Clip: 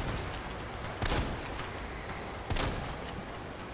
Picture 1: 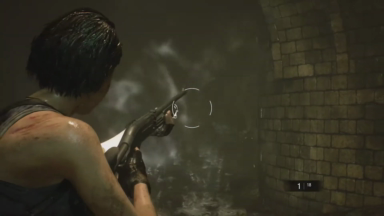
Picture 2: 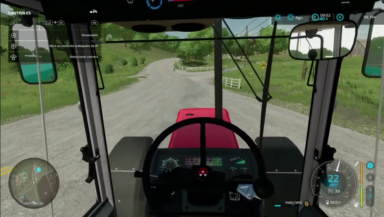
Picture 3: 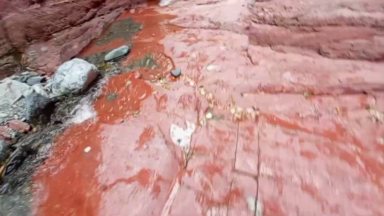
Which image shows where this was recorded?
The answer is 1